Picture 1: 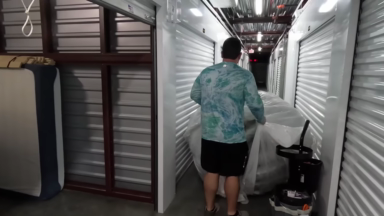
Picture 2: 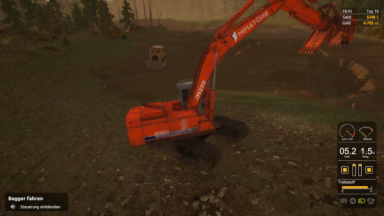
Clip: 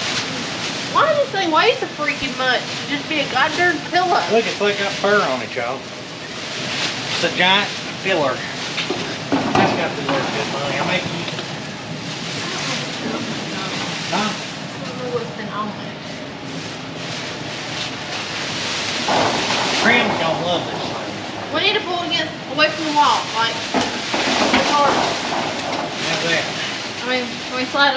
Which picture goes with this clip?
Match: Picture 1